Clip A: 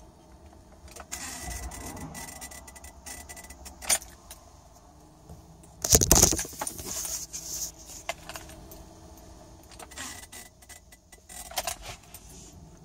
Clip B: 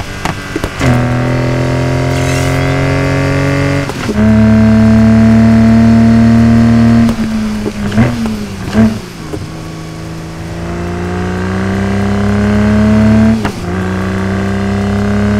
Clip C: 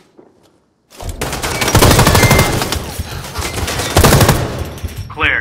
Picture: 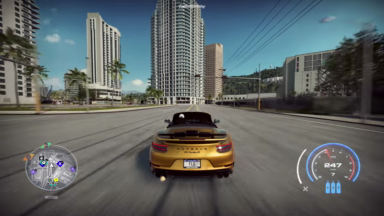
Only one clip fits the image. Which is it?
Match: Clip B